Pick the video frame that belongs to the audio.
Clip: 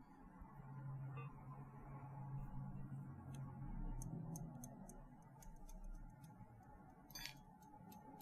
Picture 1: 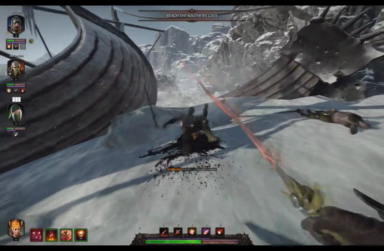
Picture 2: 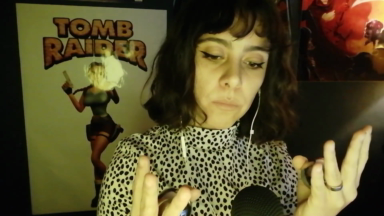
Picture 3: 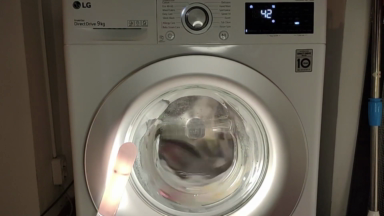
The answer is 2